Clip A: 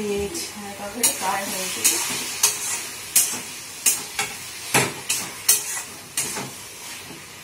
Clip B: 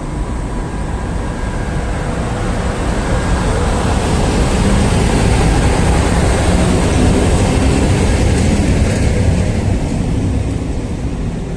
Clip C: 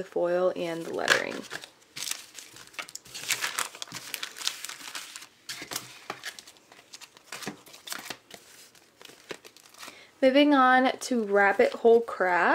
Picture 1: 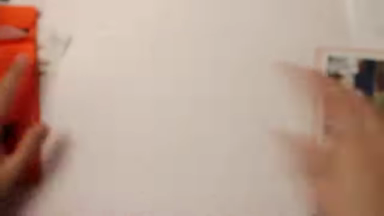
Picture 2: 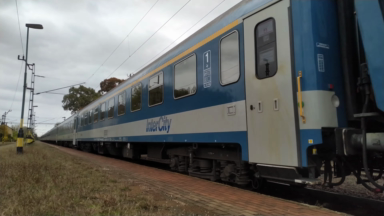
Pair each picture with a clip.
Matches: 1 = C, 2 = B